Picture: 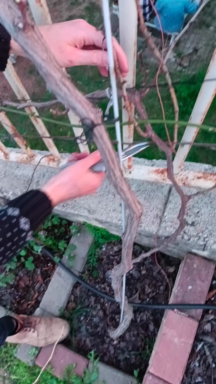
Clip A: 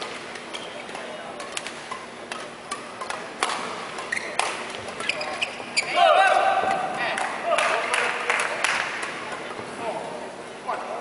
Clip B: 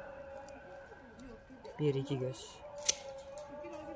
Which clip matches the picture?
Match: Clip B